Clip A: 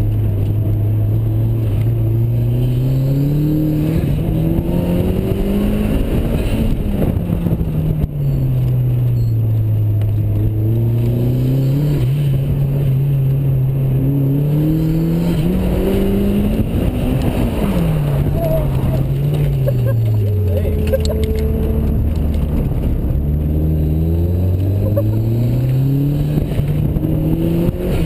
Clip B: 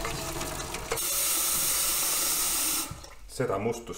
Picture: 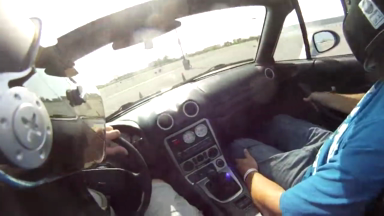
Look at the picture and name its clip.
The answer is A